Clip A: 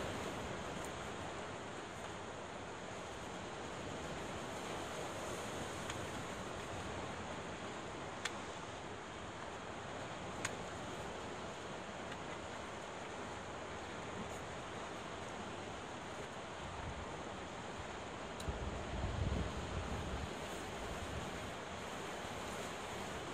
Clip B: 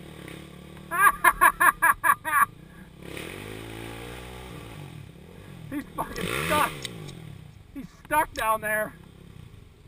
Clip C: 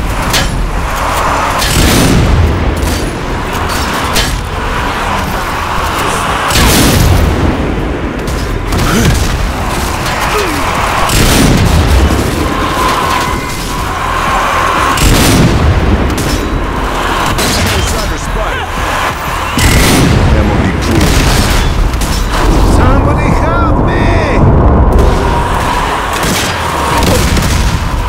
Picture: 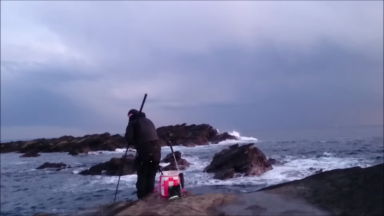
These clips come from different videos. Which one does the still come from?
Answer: A